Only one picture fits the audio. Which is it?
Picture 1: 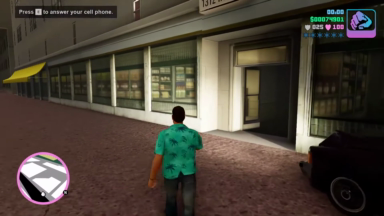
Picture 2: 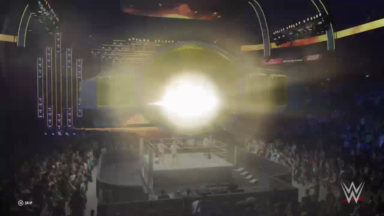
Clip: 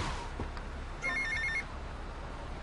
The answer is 1